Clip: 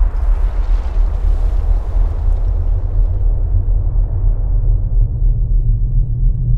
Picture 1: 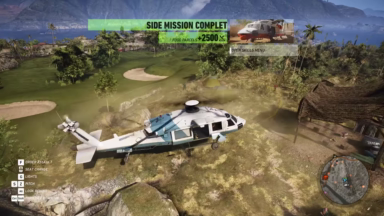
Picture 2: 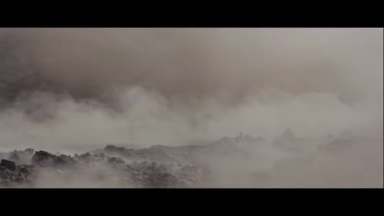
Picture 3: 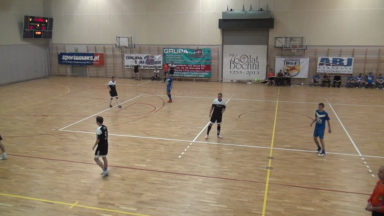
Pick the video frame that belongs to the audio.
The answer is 2